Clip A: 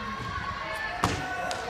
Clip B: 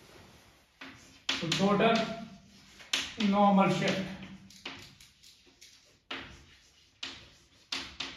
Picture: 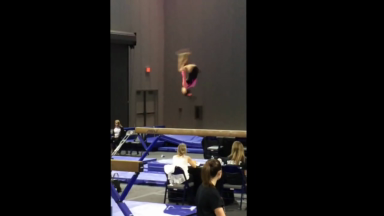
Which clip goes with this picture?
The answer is A